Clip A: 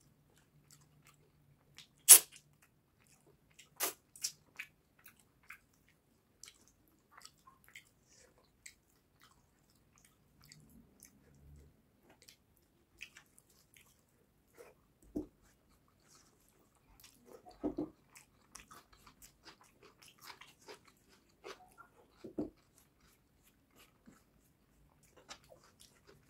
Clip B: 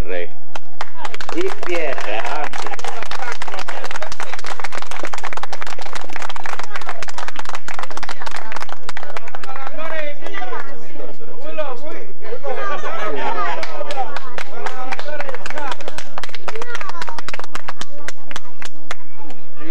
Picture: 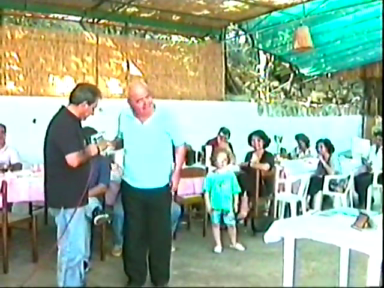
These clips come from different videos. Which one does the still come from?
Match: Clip B